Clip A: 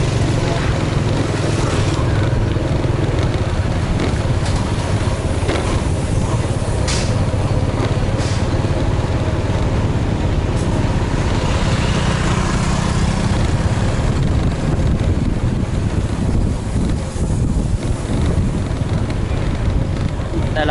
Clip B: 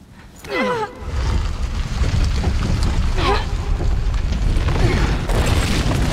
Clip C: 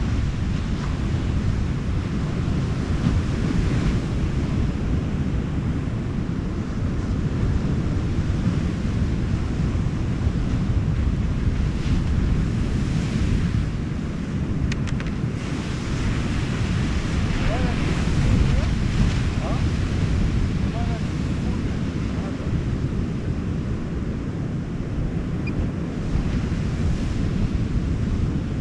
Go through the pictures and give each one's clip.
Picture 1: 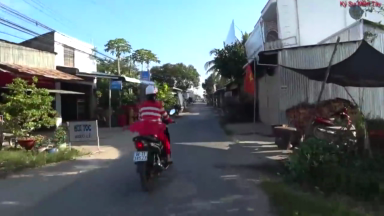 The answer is A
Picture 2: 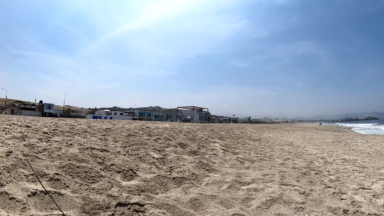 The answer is C